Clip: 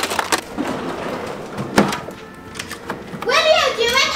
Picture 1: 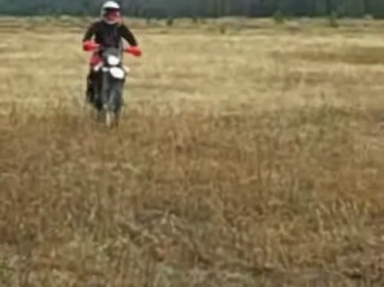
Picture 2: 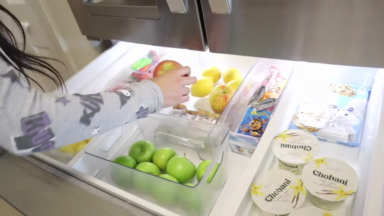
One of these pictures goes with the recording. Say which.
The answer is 2